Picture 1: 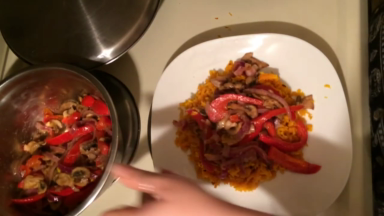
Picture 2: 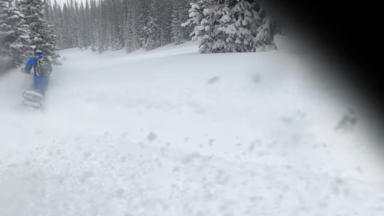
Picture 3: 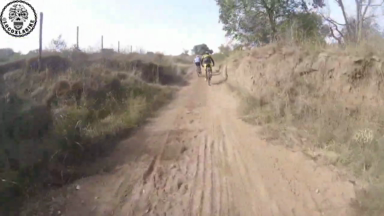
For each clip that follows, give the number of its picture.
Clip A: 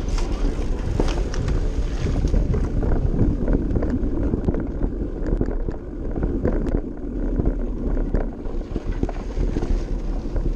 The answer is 3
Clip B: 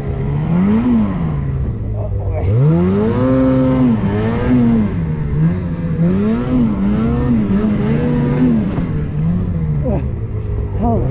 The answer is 2